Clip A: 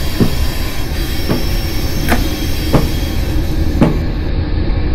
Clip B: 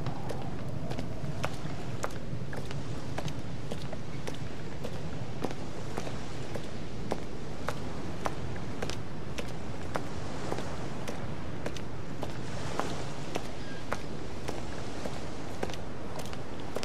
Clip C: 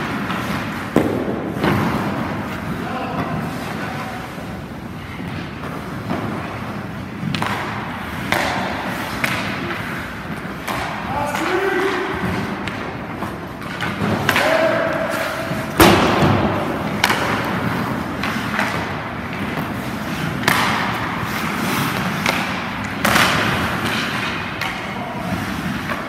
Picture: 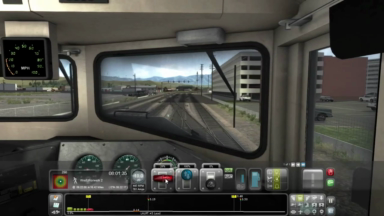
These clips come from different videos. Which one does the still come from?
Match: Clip A